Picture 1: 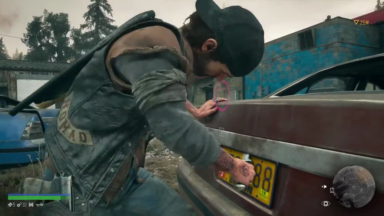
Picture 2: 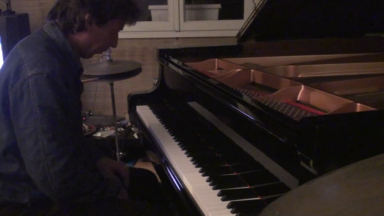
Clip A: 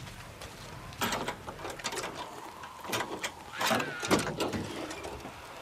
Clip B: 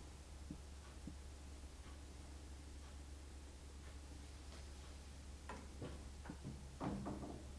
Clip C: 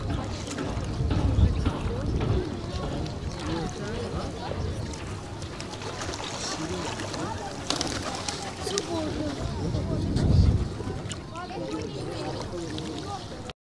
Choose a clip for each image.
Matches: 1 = A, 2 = B